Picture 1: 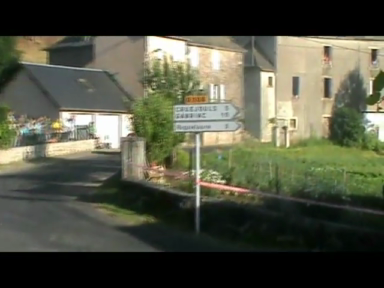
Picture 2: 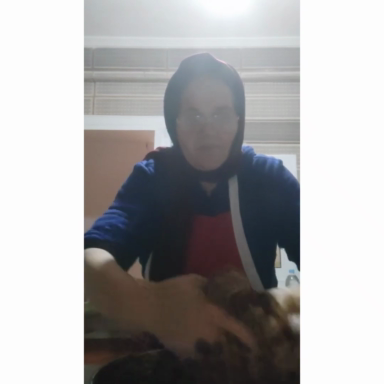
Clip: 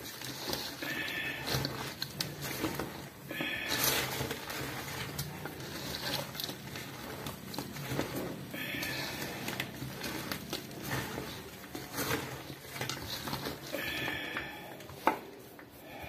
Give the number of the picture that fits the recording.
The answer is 2